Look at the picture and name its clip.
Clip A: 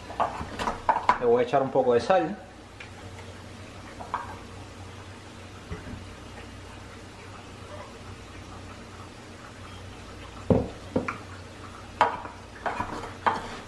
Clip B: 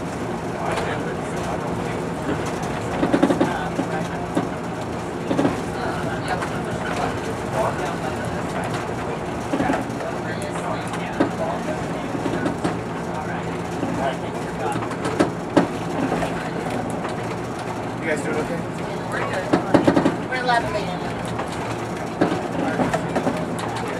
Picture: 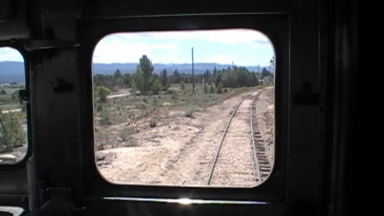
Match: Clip B